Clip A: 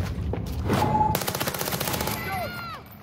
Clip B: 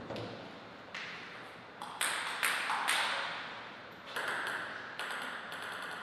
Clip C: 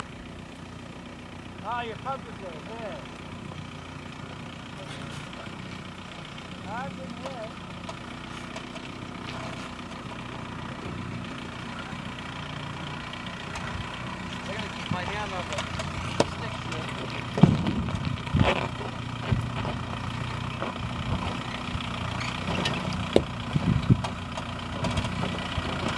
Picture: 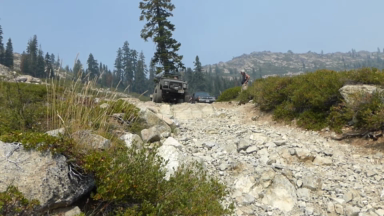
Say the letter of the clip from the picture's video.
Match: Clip C